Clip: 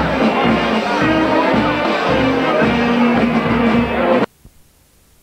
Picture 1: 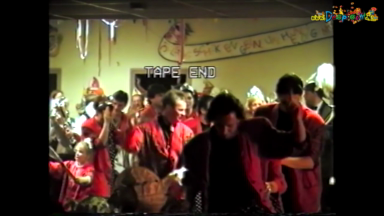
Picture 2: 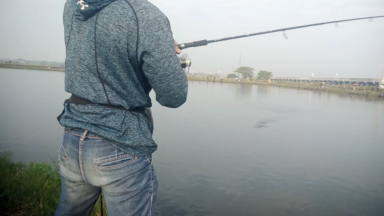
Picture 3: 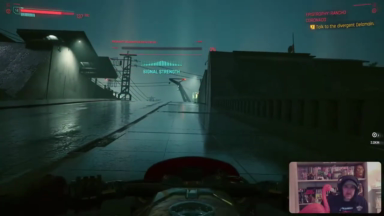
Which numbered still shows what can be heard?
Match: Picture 1